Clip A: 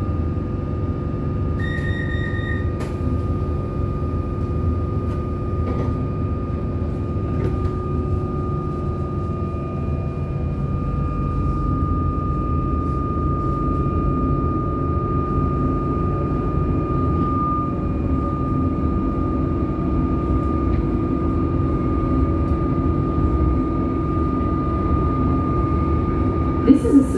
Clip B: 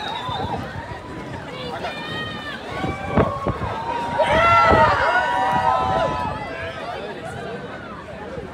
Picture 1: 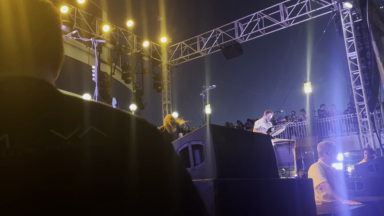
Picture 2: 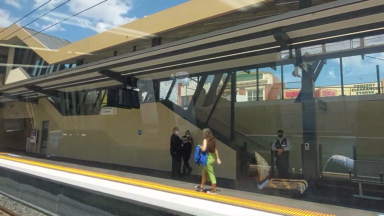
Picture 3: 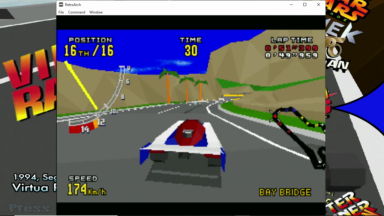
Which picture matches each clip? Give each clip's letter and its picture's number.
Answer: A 2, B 1